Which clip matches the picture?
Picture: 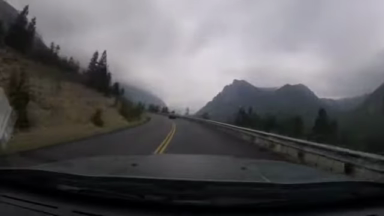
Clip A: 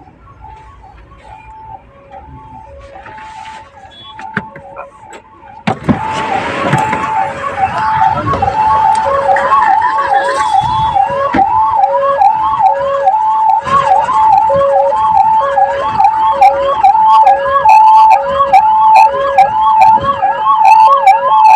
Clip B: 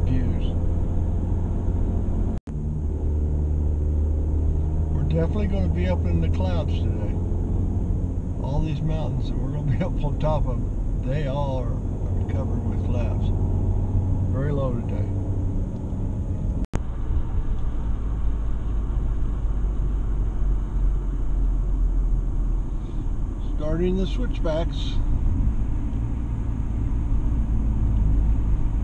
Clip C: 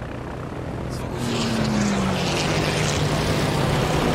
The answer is B